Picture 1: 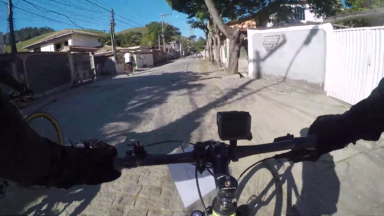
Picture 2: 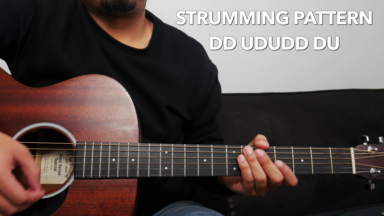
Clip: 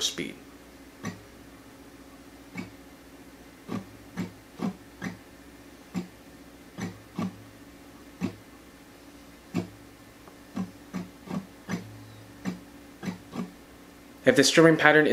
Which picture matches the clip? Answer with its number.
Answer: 2